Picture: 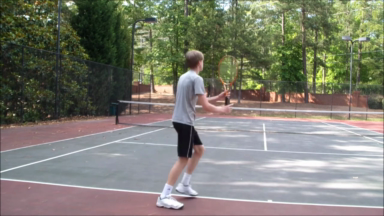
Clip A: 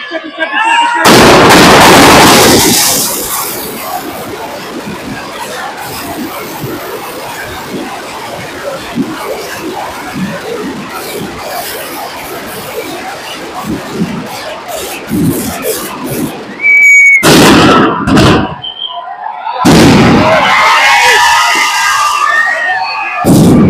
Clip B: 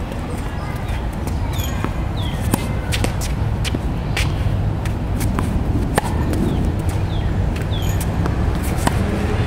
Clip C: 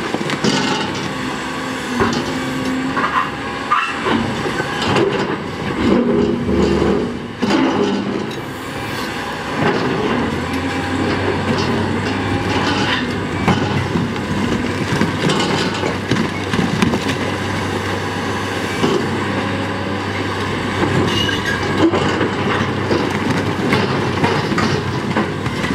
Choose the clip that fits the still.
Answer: B